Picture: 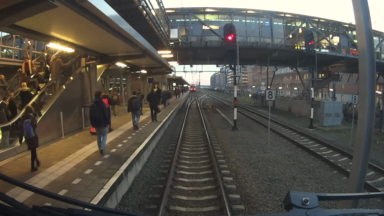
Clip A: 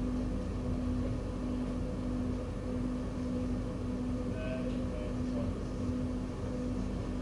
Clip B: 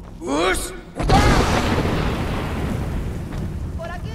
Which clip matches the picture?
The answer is A